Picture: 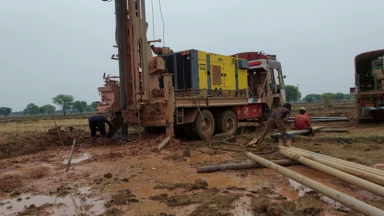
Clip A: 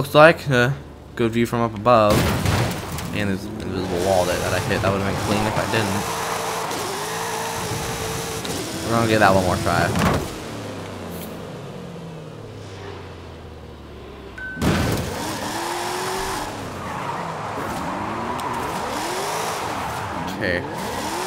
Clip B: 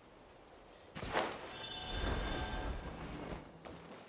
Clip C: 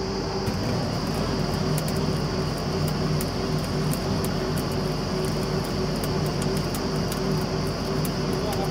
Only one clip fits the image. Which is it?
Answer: C